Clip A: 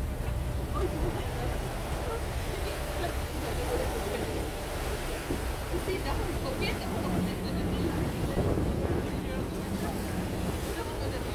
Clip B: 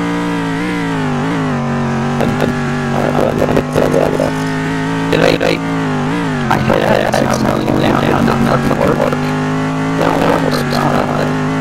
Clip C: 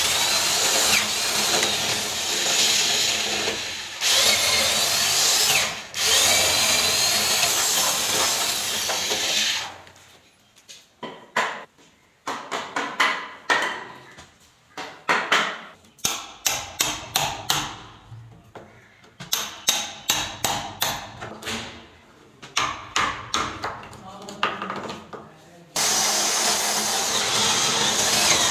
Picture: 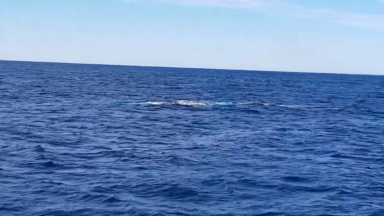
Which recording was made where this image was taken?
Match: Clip A